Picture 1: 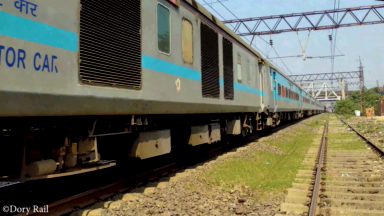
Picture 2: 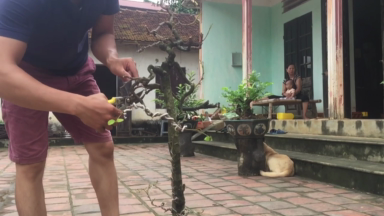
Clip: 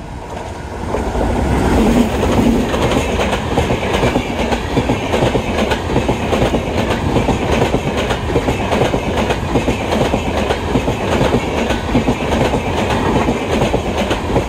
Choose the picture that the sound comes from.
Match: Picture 1